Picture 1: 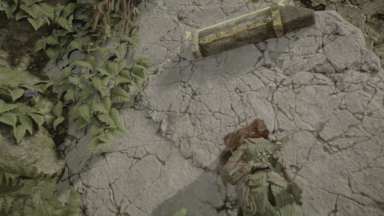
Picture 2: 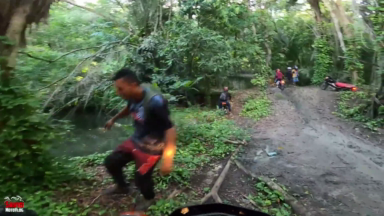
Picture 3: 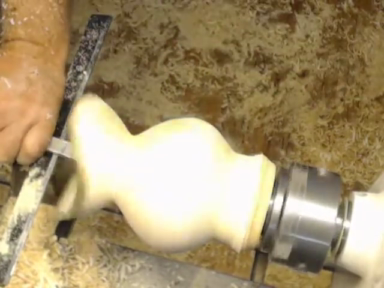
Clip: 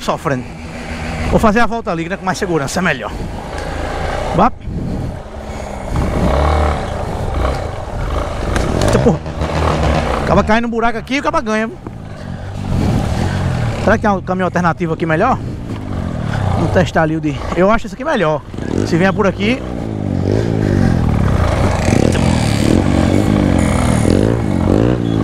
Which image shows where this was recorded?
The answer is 2